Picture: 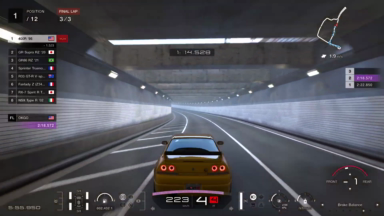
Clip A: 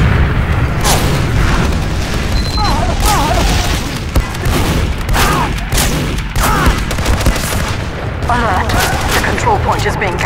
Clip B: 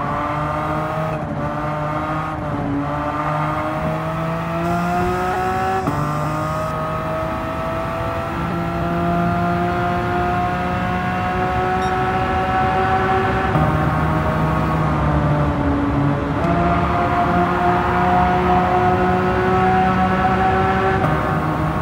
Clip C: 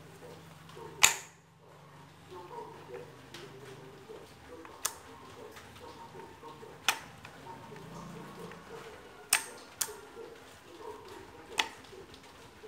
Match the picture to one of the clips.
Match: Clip B